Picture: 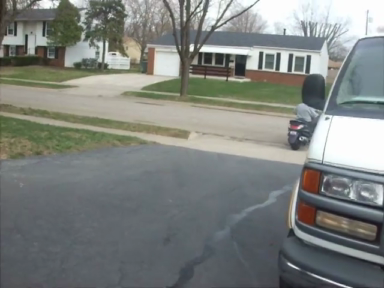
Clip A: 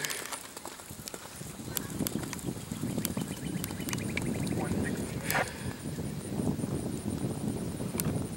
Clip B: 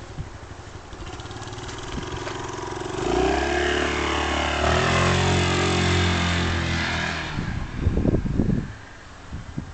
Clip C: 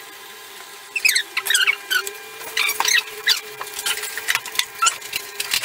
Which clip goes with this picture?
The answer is B